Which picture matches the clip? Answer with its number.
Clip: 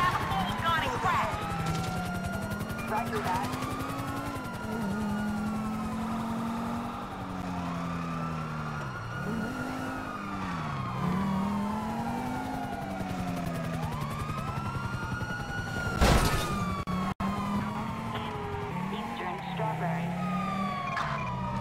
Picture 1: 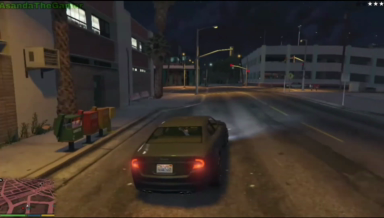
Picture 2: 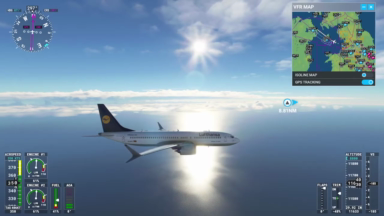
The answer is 1